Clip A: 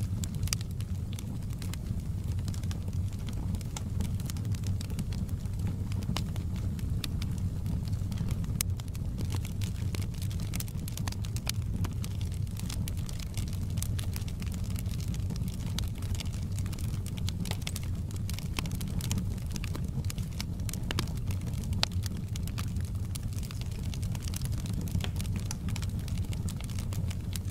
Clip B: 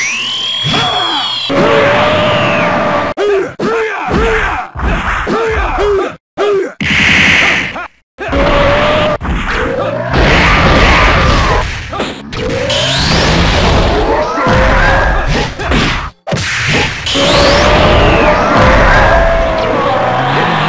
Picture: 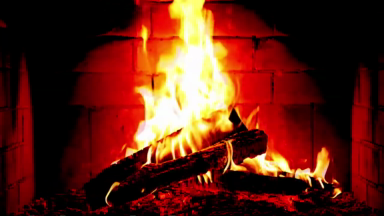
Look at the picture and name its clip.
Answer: A